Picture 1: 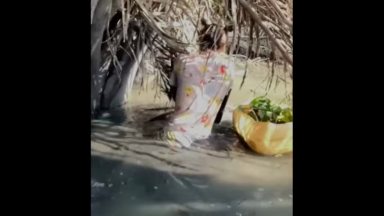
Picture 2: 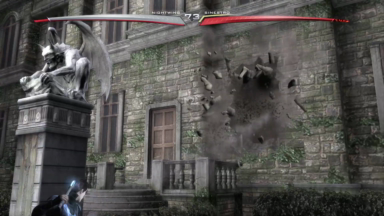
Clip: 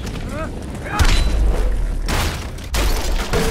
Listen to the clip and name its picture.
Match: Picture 2